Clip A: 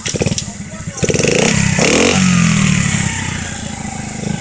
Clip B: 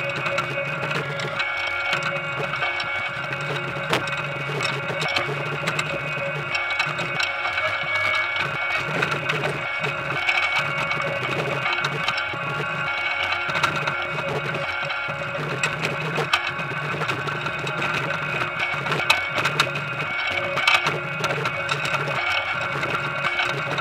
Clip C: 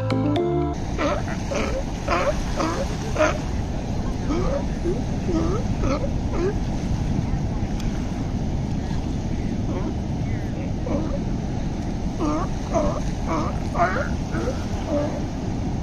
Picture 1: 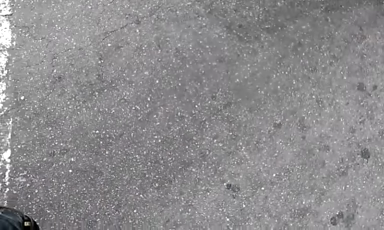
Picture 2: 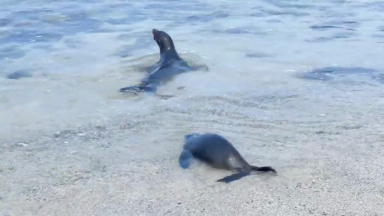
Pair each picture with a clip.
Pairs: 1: A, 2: C